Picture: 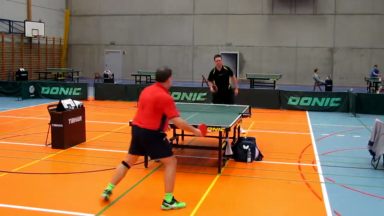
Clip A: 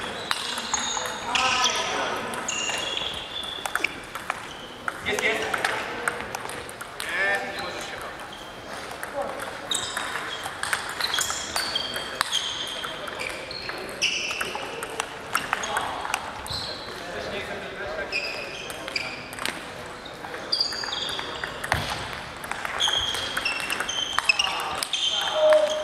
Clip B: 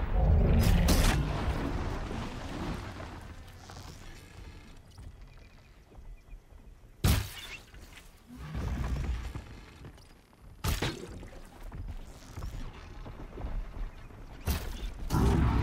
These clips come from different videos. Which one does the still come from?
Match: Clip A